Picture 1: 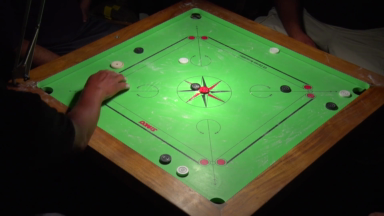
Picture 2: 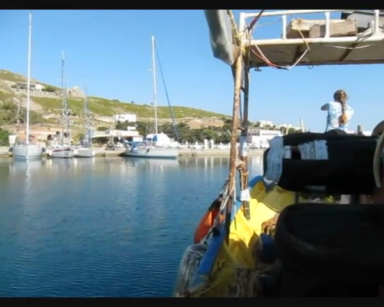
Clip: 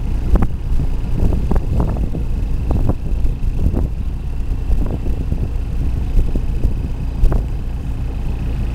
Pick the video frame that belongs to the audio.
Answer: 2